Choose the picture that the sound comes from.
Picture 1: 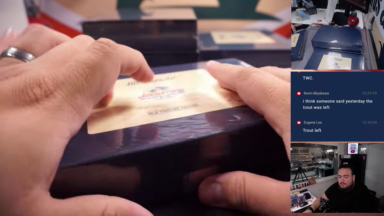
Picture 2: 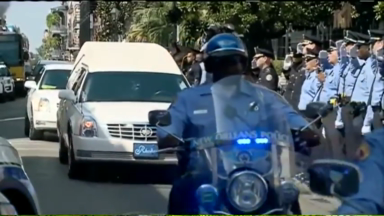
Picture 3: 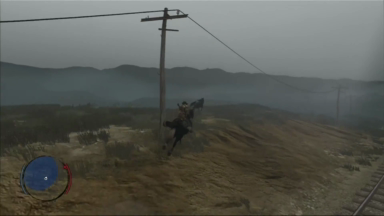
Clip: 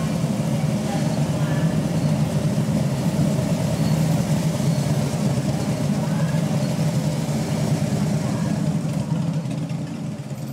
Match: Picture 2